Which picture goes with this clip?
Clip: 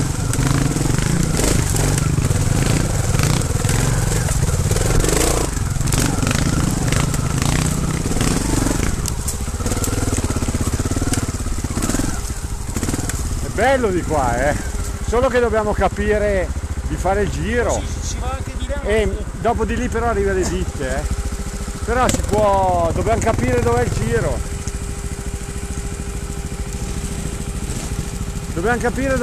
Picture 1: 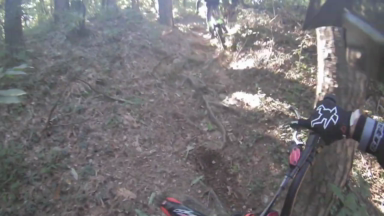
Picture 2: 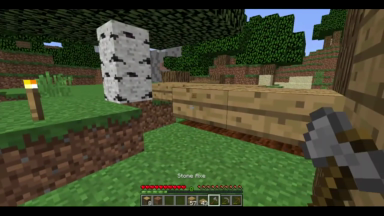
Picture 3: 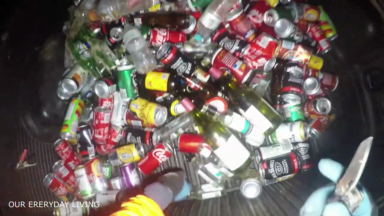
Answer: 1